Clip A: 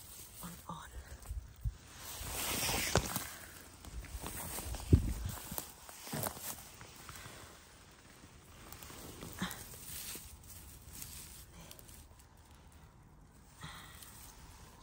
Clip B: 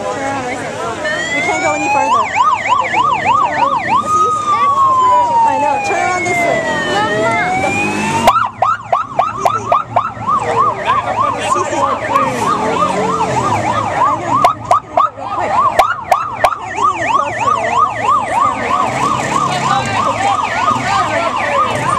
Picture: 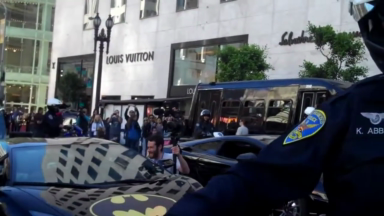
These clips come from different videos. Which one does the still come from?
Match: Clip B